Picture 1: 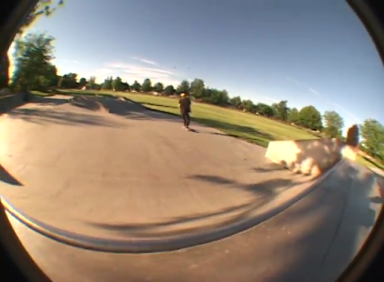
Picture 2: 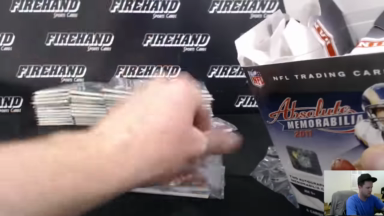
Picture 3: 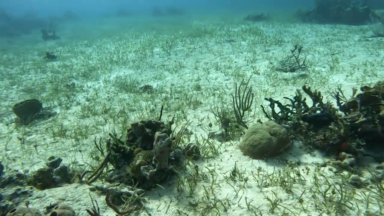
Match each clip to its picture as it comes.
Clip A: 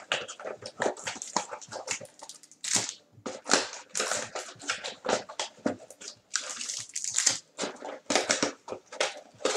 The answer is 2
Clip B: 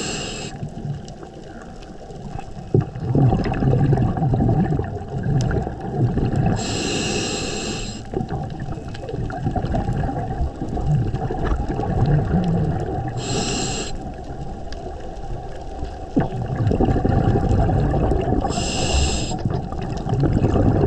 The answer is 3